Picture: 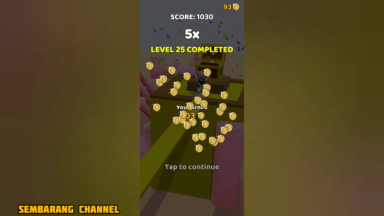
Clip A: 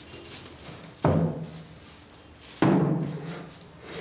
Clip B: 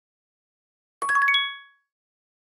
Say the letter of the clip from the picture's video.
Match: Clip B